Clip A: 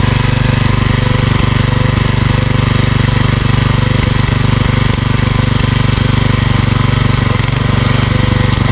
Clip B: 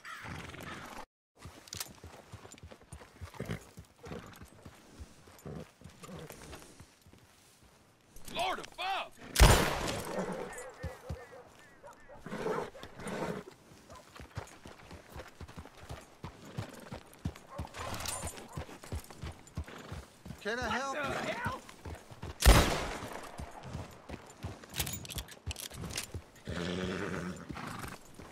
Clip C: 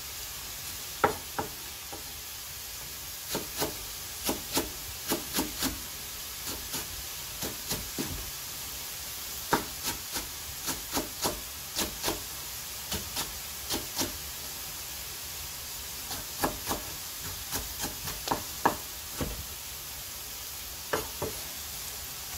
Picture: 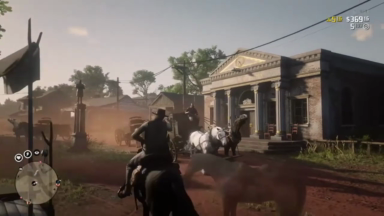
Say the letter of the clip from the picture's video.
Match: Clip B